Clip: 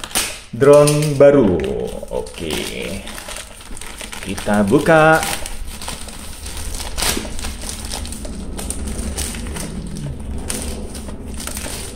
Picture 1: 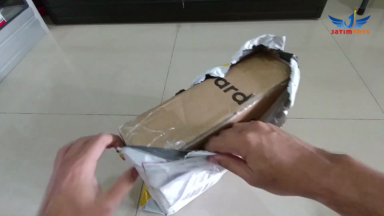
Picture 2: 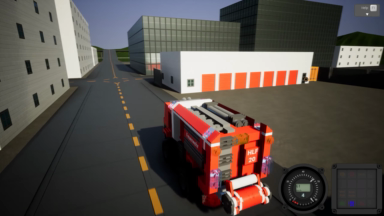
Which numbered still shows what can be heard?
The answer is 1